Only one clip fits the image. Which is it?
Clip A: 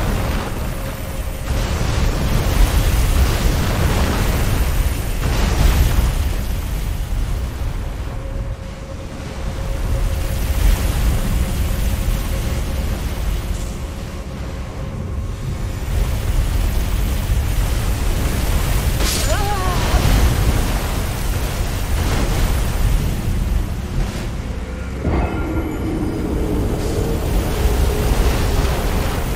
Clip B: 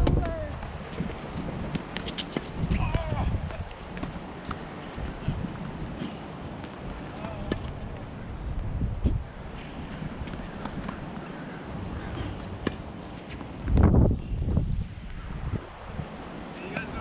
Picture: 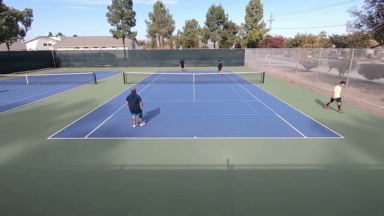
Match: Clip B